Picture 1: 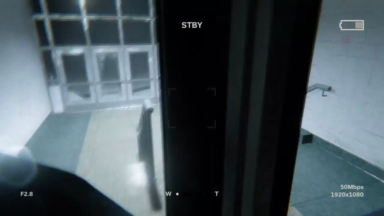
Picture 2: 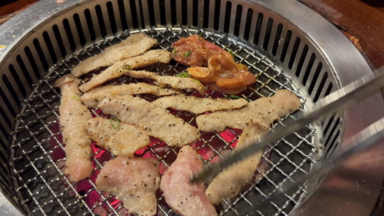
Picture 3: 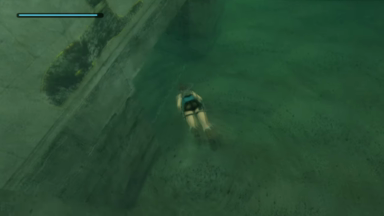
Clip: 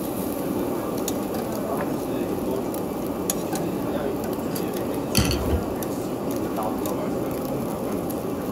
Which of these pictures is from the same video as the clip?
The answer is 2